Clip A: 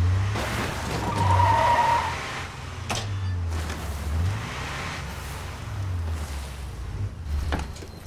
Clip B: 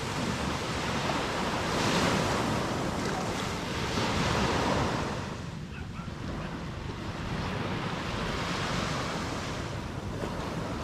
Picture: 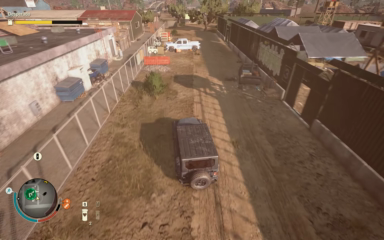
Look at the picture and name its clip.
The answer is A